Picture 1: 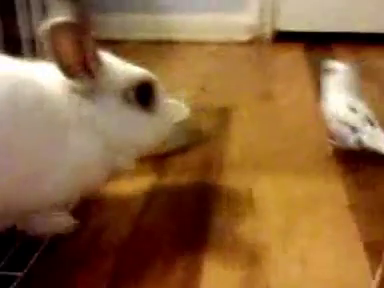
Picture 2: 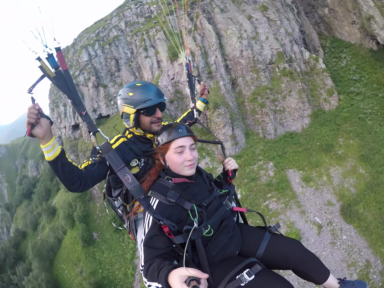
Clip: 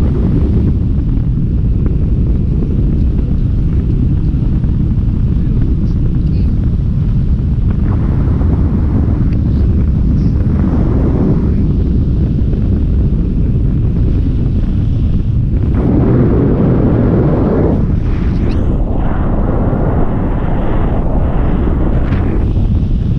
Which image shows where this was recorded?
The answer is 2